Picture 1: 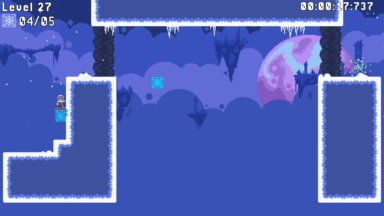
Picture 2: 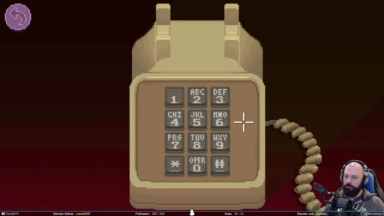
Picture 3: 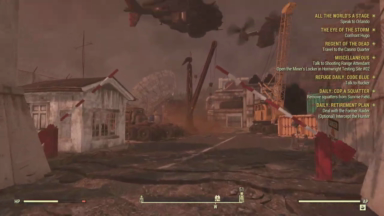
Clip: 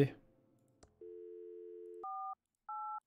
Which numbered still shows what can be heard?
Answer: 2